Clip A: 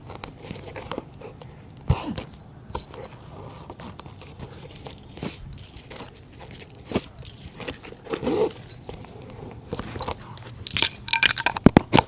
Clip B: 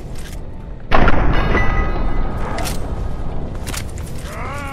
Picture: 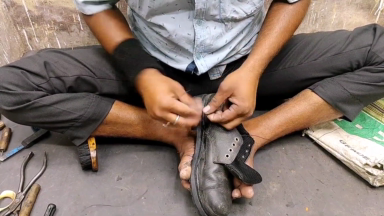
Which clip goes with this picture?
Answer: A